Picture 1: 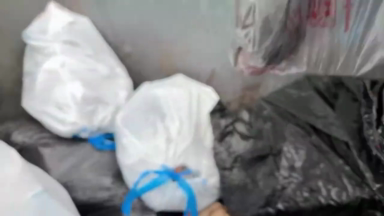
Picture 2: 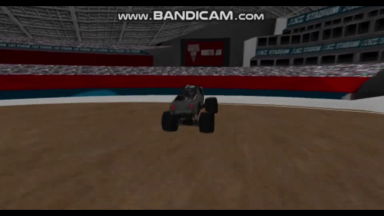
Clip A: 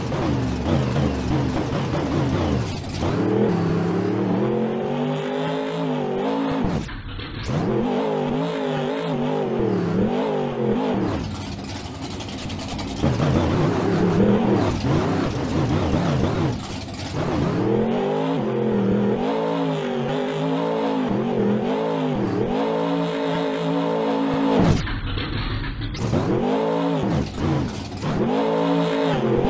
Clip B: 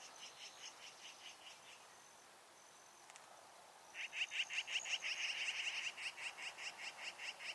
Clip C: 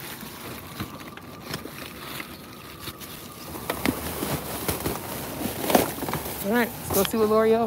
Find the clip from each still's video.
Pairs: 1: C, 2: A